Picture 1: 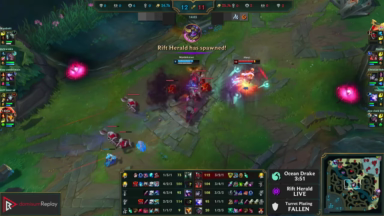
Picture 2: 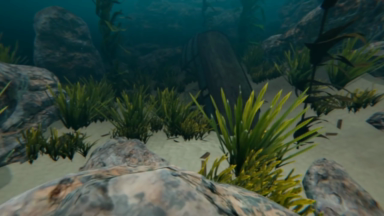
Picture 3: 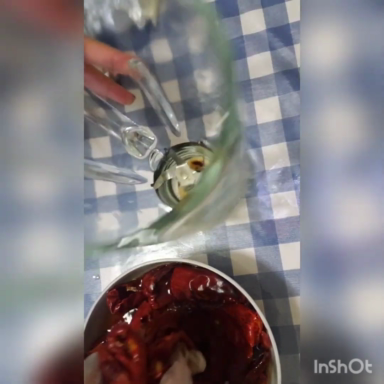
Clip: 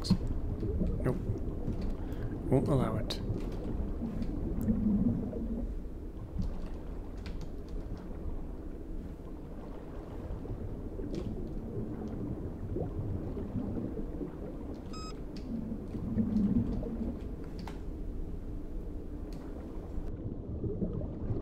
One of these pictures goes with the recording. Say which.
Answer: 2